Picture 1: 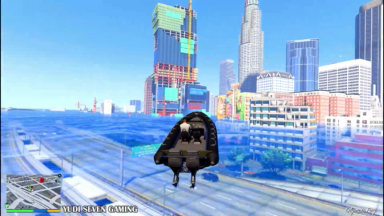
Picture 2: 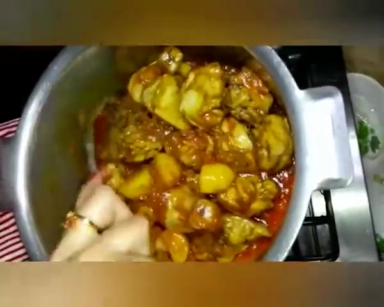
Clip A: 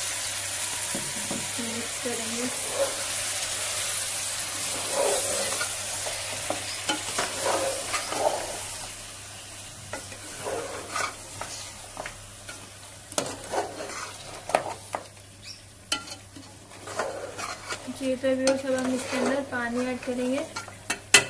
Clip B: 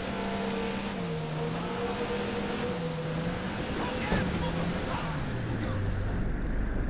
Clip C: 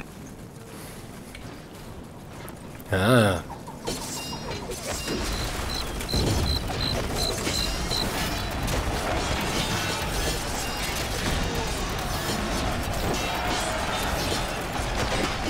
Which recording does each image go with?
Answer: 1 B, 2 A